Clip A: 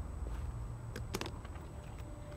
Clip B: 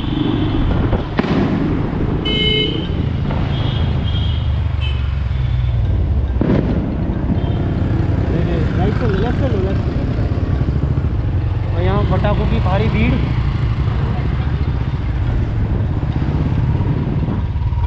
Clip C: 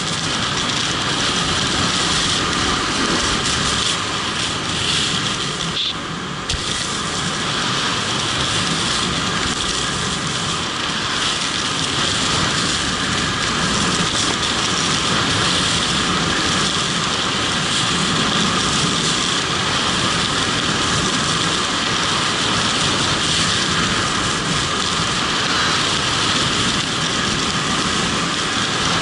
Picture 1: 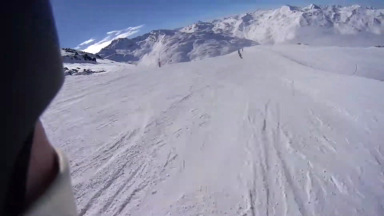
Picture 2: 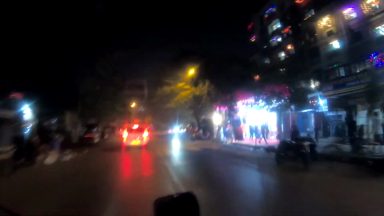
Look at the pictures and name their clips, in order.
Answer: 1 C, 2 B